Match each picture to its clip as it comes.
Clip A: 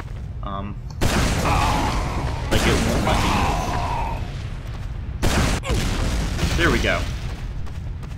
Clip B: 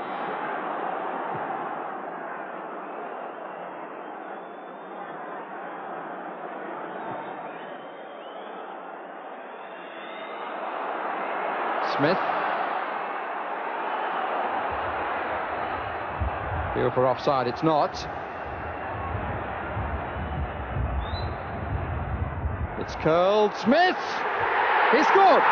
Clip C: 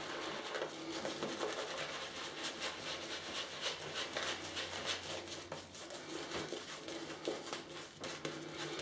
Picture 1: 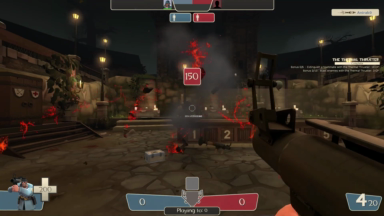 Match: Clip A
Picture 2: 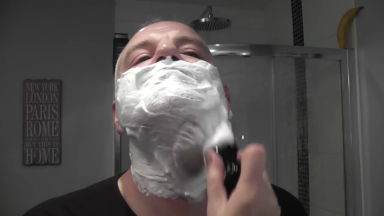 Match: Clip C